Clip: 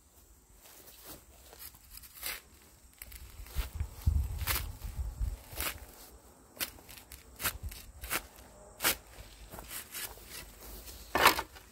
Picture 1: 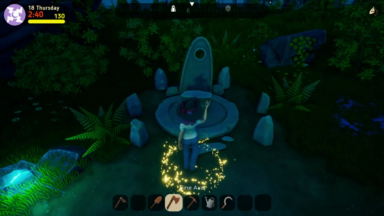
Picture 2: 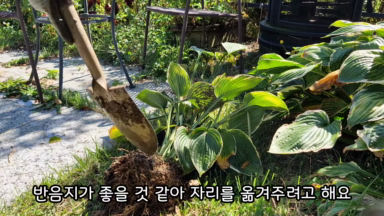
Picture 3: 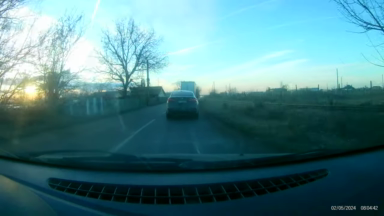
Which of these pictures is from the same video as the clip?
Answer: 2